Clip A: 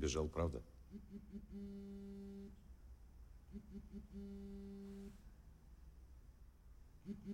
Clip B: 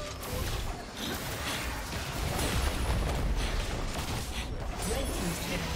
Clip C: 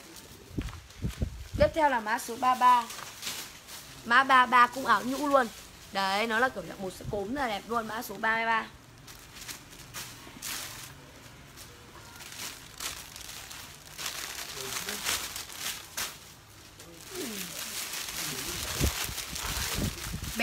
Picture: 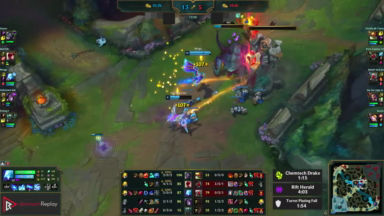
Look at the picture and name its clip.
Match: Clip B